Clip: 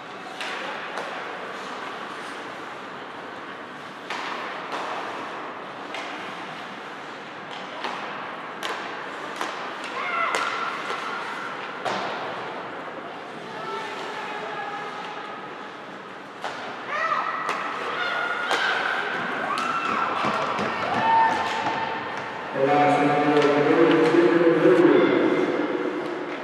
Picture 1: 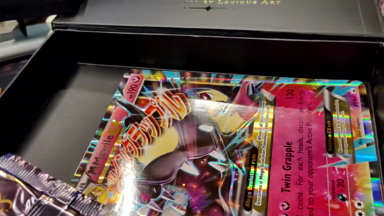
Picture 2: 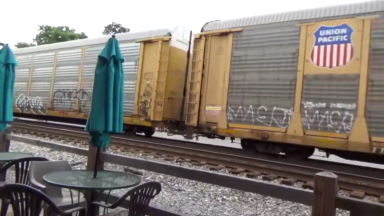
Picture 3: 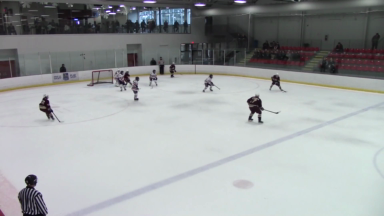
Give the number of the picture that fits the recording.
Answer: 3